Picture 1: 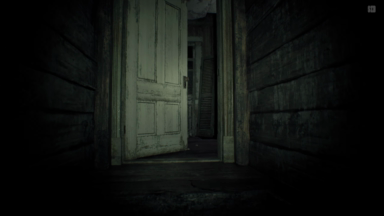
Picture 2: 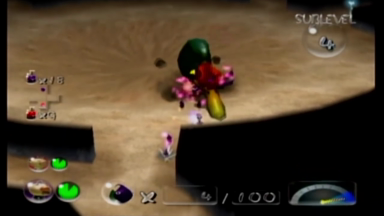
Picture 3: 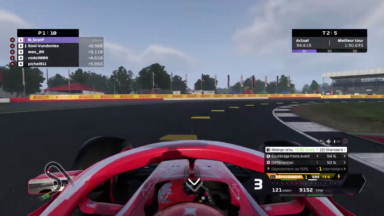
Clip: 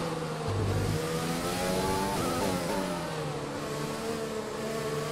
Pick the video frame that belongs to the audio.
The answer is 3